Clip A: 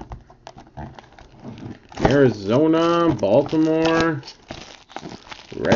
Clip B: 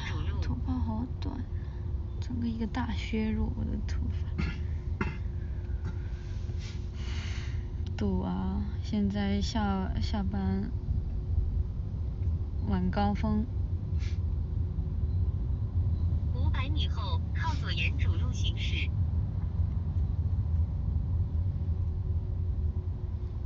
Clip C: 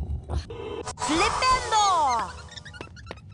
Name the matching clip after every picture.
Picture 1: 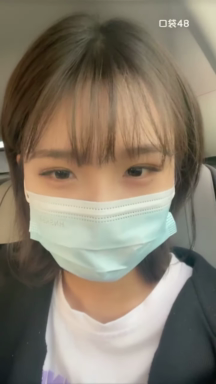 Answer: B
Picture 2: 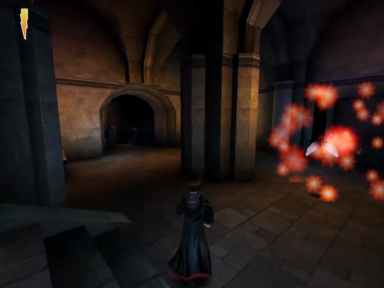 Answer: C